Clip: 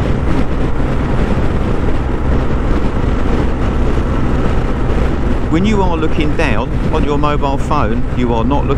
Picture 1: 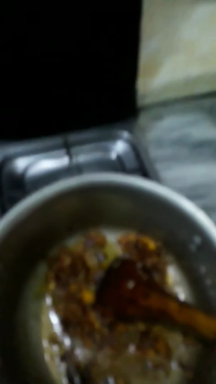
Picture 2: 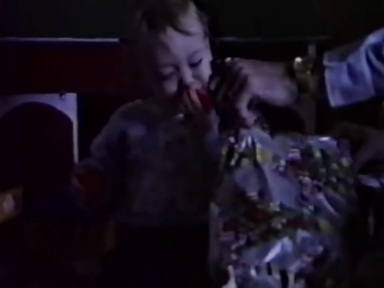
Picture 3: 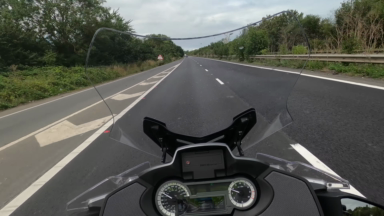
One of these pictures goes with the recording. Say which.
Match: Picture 3